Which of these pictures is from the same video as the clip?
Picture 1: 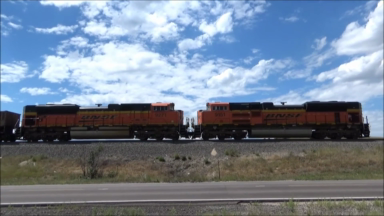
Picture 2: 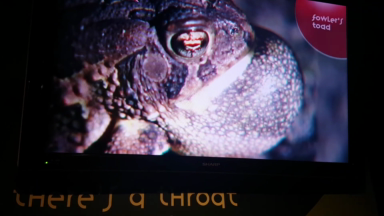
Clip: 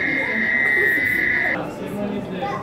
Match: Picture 2